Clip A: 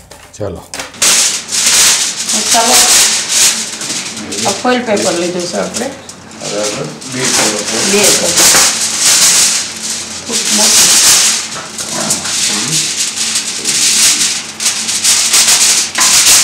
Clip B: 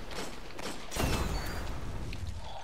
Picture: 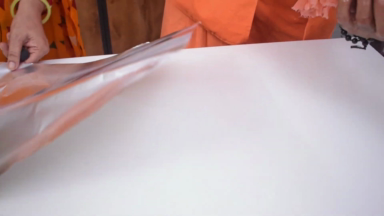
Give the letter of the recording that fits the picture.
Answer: A